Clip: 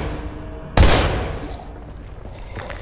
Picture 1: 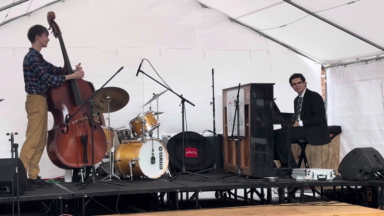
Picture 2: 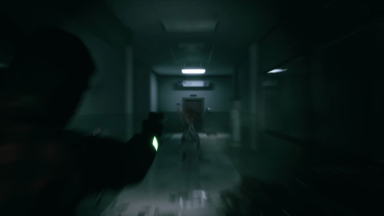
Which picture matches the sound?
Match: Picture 2